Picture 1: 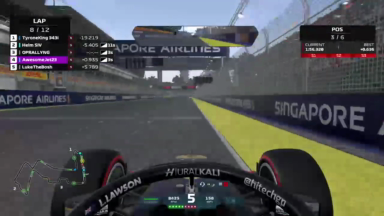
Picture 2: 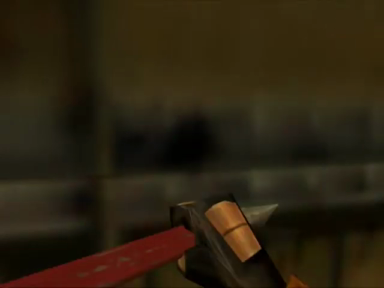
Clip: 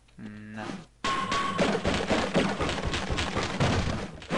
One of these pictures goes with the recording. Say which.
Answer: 2